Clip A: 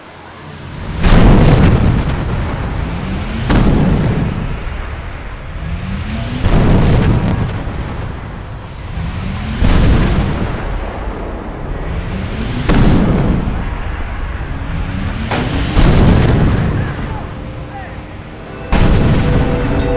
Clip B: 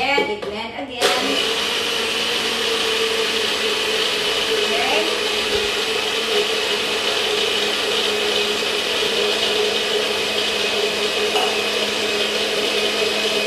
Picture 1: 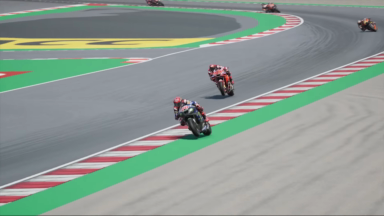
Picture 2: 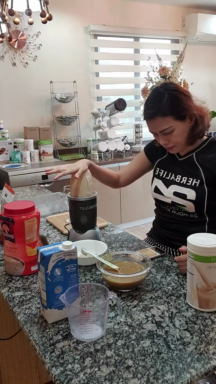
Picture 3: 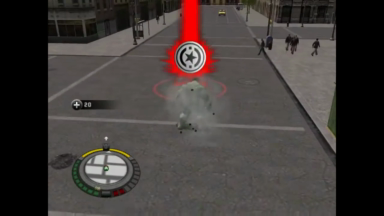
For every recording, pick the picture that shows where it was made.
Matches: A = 3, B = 2